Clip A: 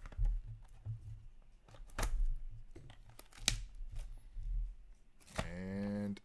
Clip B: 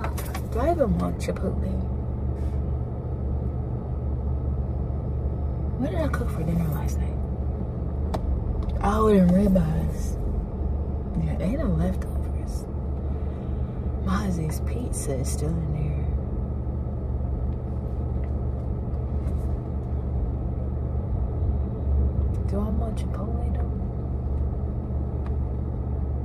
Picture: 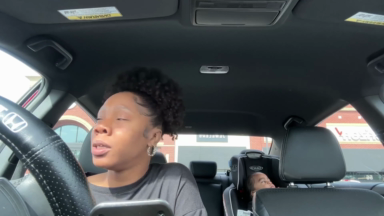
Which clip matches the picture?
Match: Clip B